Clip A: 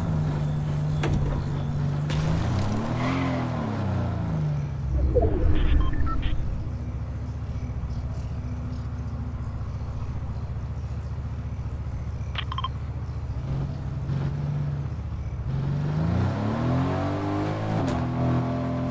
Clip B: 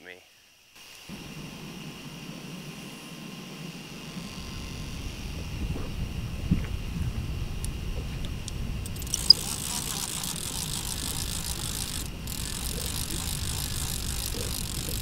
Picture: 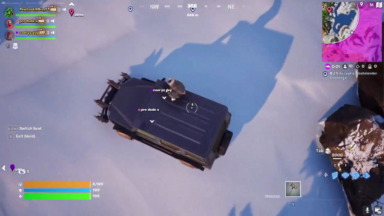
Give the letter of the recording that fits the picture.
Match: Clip A